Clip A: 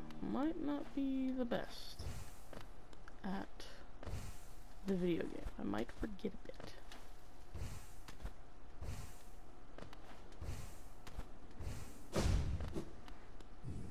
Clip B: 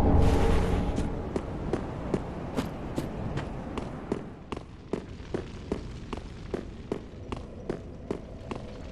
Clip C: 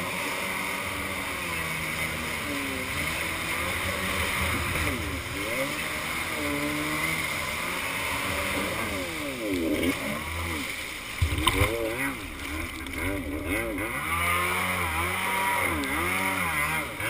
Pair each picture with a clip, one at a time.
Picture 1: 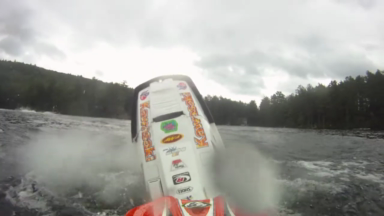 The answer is C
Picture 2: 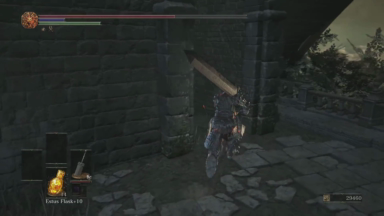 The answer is B